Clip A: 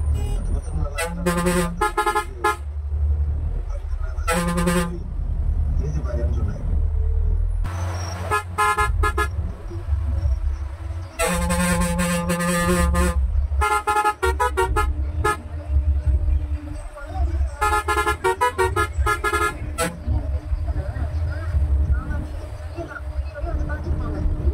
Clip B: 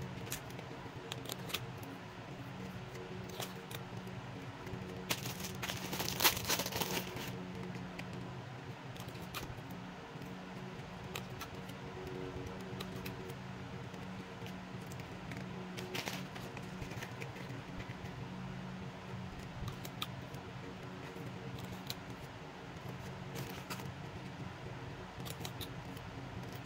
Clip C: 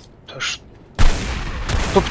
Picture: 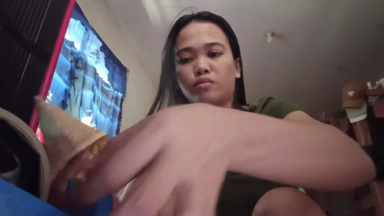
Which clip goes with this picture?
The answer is B